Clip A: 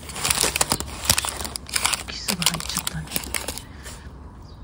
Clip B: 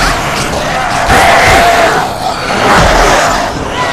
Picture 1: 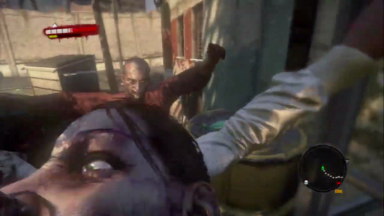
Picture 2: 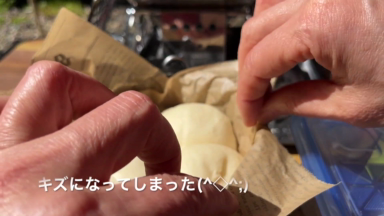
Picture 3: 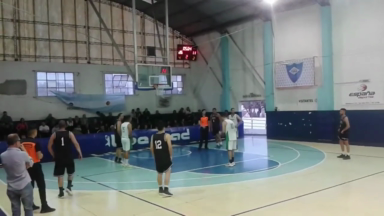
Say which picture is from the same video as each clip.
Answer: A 2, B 1